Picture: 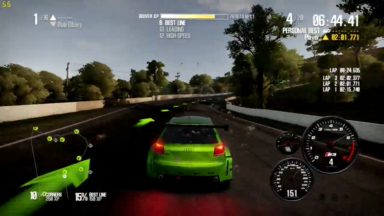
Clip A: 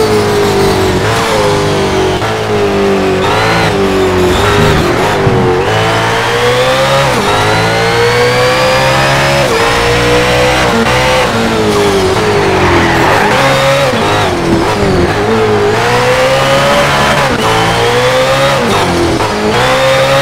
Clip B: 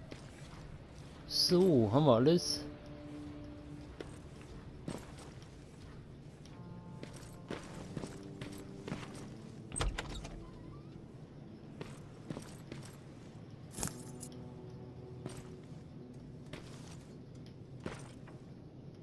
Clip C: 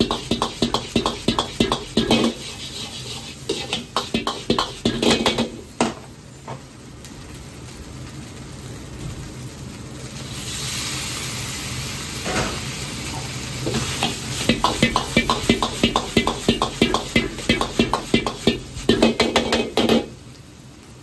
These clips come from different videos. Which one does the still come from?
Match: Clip A